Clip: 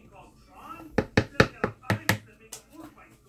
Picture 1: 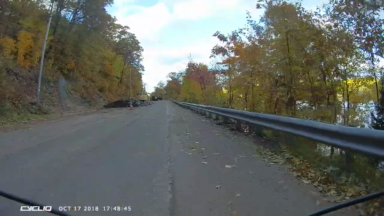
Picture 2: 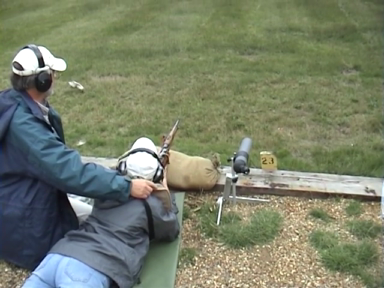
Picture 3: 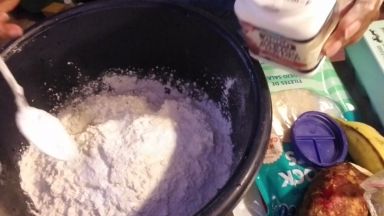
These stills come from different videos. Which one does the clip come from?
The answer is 3